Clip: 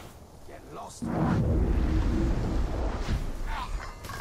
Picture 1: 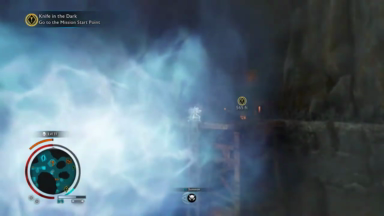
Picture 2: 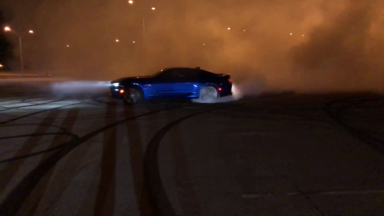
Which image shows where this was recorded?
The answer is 1